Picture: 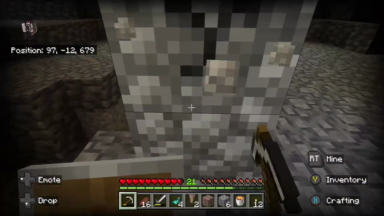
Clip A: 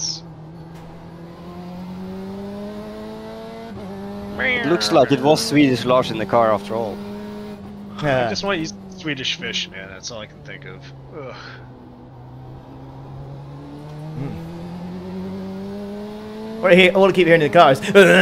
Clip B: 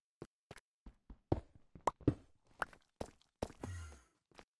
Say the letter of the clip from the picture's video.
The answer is B